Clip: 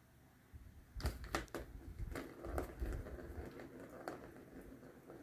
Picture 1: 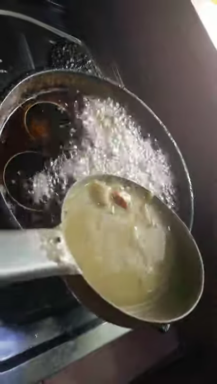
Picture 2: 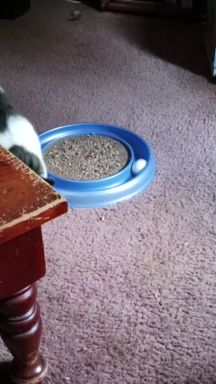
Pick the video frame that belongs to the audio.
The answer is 2